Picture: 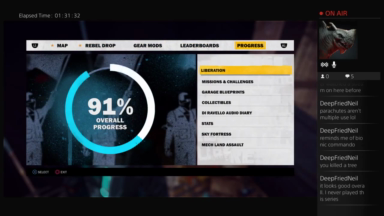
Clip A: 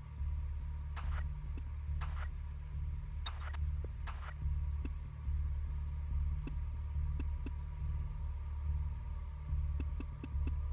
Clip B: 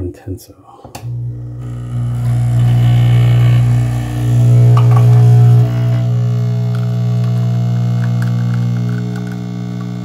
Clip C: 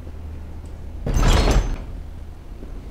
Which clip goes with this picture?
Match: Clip A